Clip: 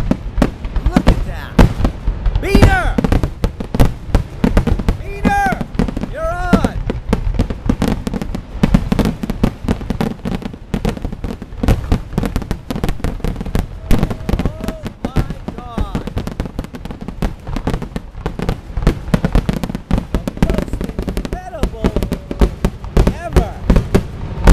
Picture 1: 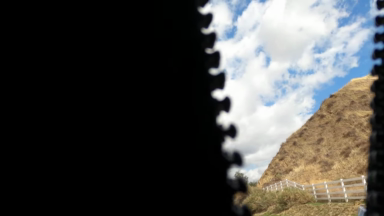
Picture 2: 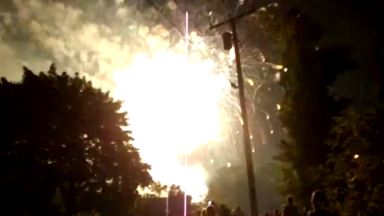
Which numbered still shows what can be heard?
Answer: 2